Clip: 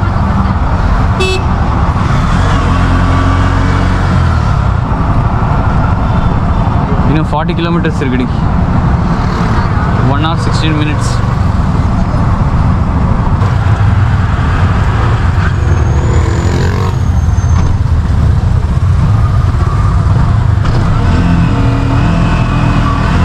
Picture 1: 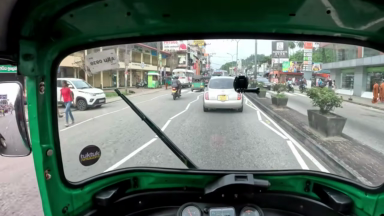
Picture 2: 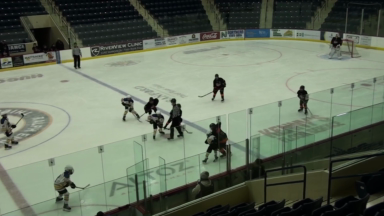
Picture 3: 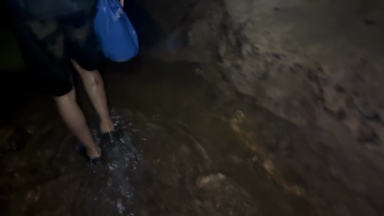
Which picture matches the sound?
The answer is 1